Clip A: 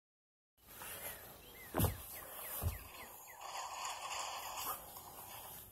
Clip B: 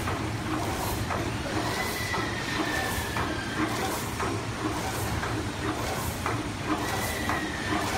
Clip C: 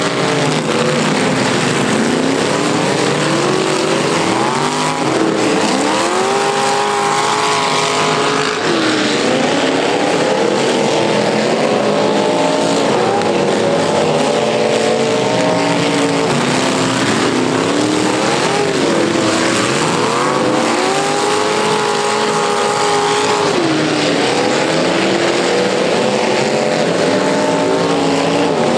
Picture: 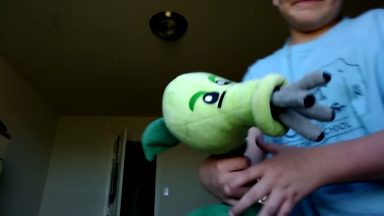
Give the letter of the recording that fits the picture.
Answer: A